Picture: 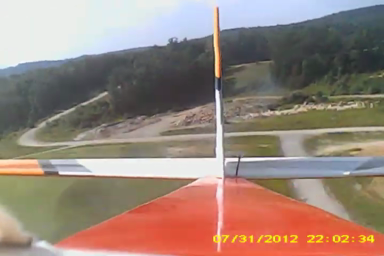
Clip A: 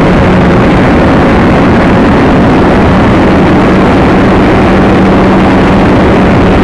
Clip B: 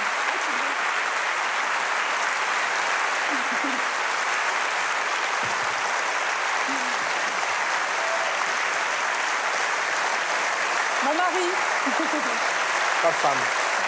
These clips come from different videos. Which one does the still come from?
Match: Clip A